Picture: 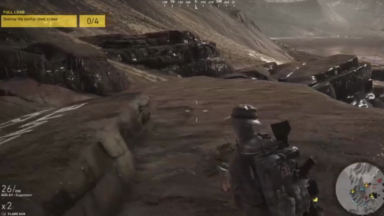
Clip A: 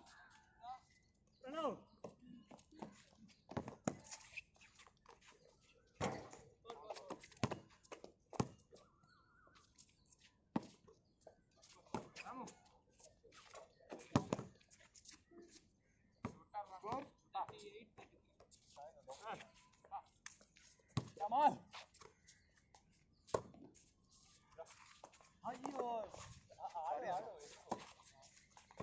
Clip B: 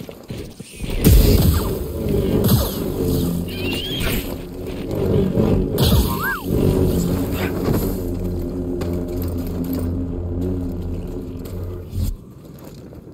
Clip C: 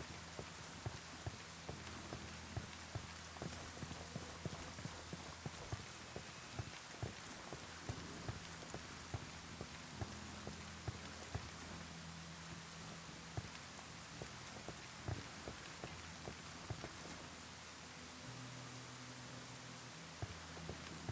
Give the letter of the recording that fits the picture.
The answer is C